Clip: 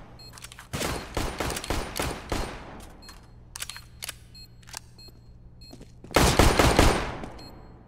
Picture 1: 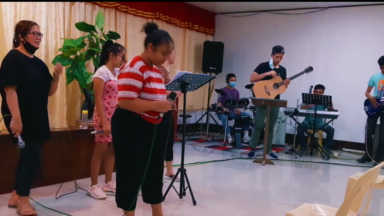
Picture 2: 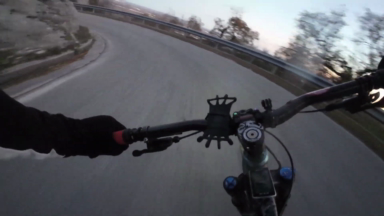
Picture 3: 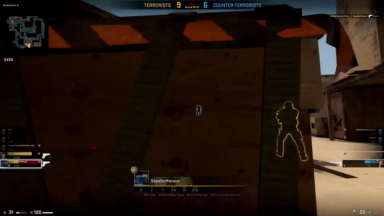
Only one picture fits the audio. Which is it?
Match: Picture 3